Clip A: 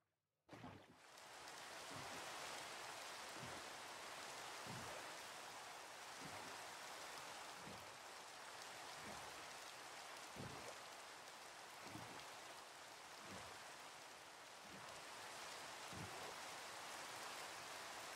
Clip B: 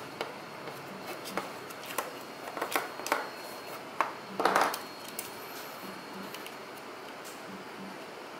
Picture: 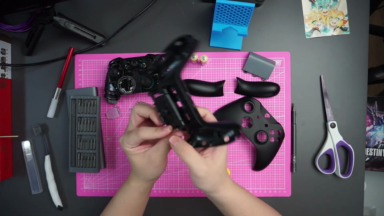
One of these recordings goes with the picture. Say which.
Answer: B